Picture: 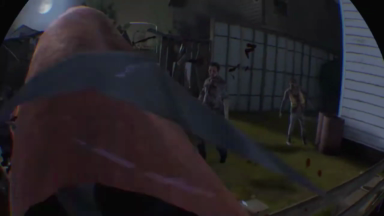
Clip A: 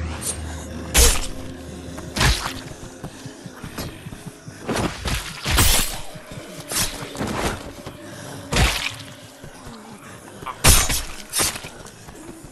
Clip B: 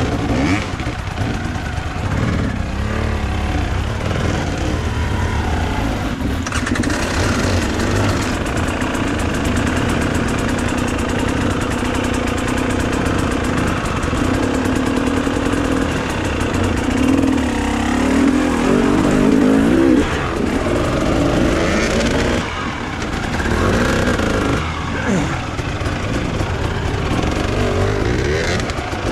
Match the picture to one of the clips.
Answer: A